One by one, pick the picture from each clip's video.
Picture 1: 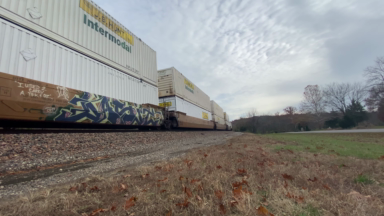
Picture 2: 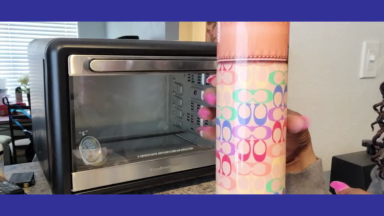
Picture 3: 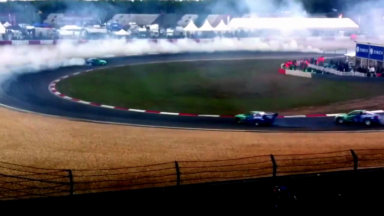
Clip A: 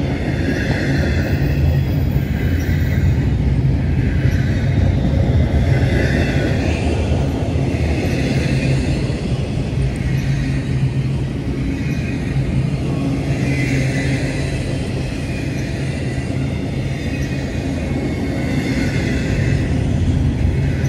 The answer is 1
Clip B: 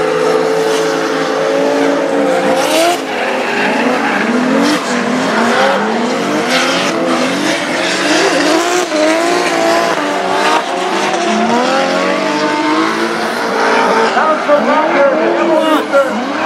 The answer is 3